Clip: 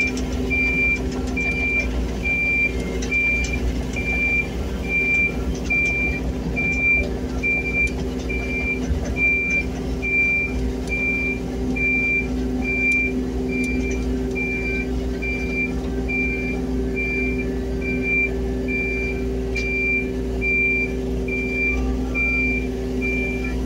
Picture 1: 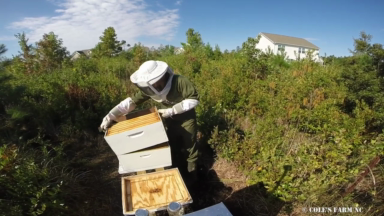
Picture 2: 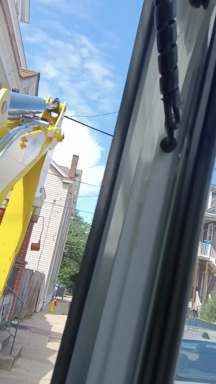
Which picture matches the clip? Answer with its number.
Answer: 2